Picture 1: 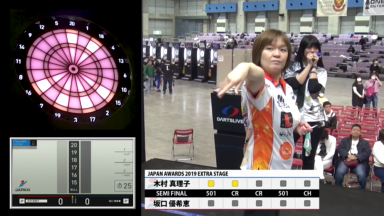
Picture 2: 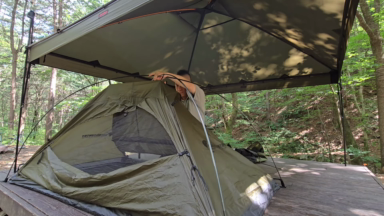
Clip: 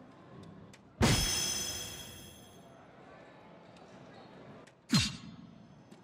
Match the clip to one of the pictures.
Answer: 1